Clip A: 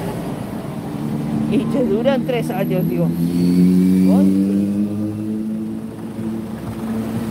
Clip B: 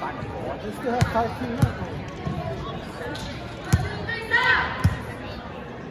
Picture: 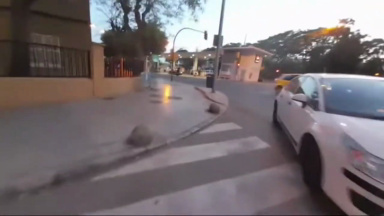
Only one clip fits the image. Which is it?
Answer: A